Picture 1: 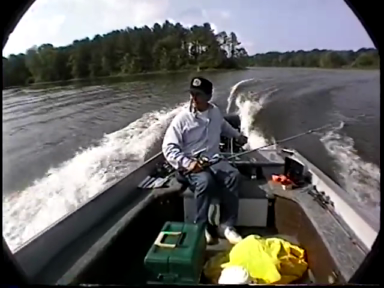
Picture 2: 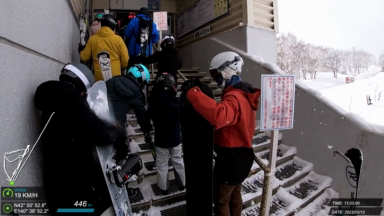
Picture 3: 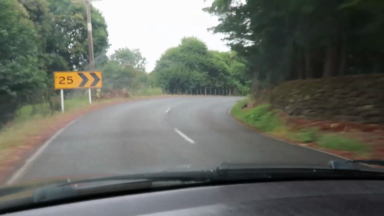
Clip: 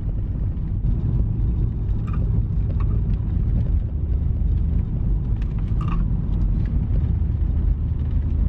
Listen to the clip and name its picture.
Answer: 3